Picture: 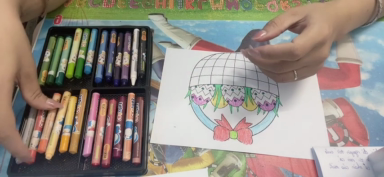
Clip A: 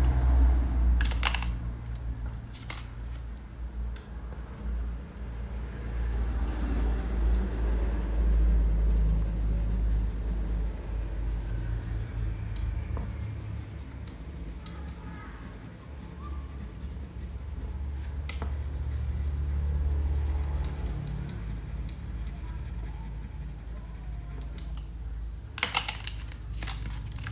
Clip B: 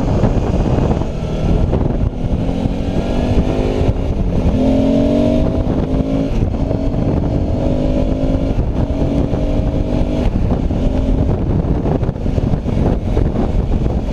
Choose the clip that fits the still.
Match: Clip A